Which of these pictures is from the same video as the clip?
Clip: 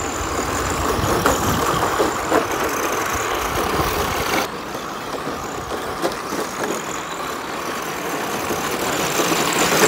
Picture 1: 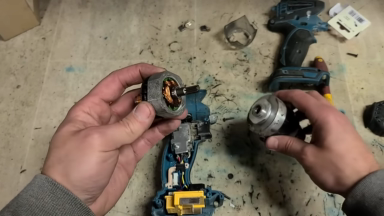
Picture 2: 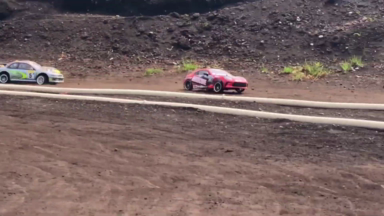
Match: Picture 2